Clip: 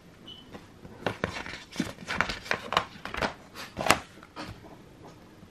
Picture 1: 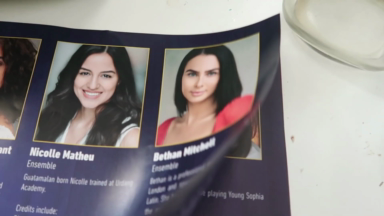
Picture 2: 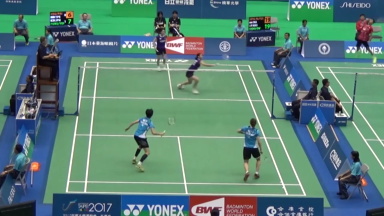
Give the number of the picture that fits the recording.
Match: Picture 1